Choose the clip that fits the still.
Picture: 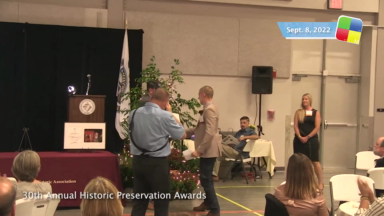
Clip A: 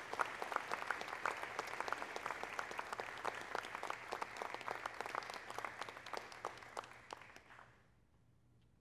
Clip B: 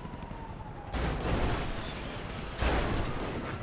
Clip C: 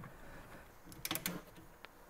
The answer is A